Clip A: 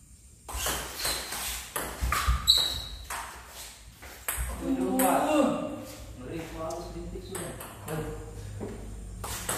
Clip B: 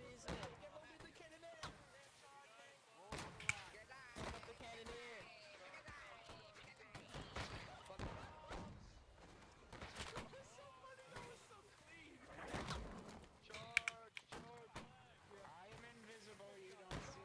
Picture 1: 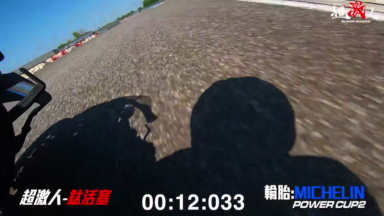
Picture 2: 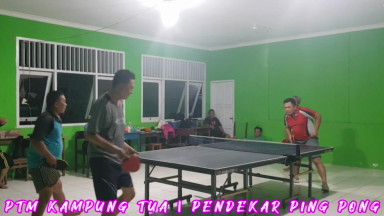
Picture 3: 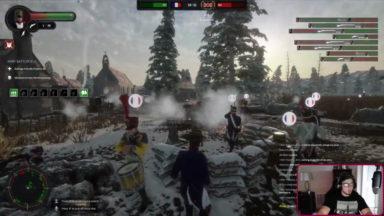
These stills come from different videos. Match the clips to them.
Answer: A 2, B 3